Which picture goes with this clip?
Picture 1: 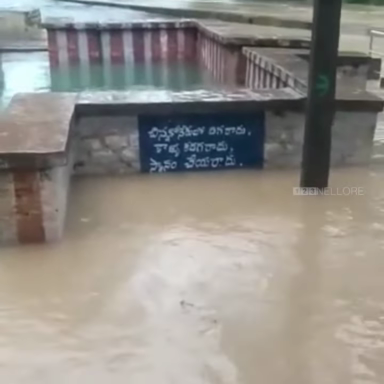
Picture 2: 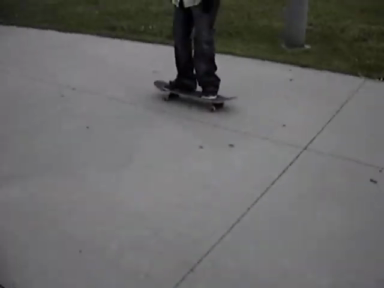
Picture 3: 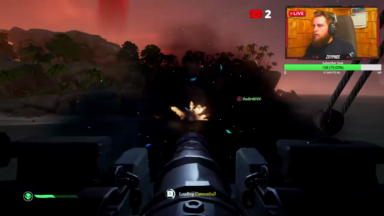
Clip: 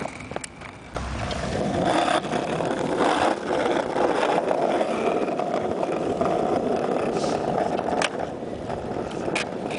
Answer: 2